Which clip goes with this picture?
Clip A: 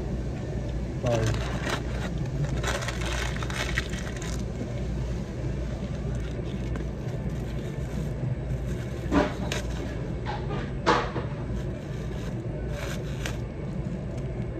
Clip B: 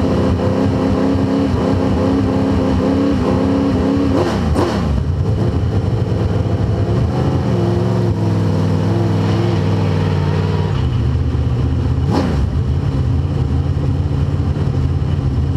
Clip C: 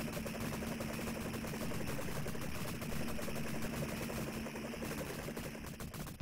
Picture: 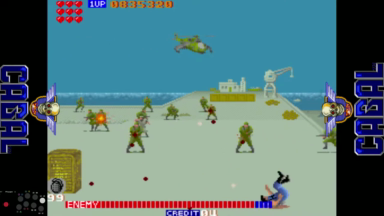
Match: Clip C